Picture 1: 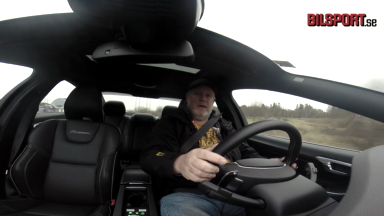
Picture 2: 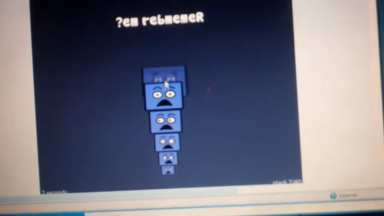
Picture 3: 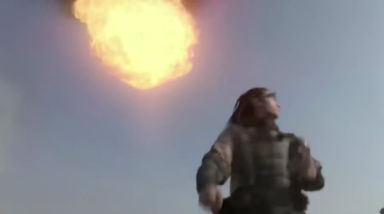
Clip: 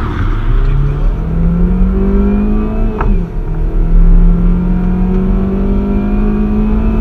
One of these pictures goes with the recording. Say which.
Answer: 1